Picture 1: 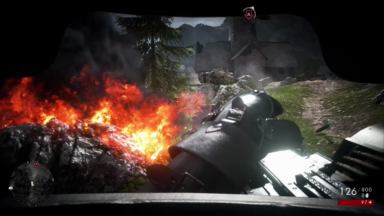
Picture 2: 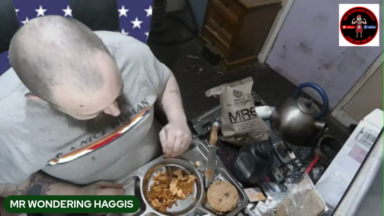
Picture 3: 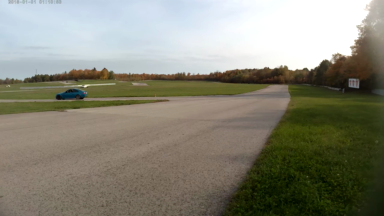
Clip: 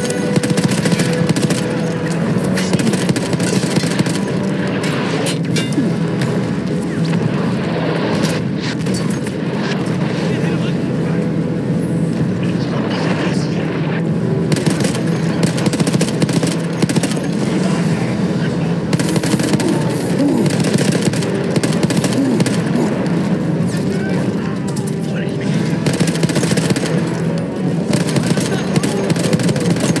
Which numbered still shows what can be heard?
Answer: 1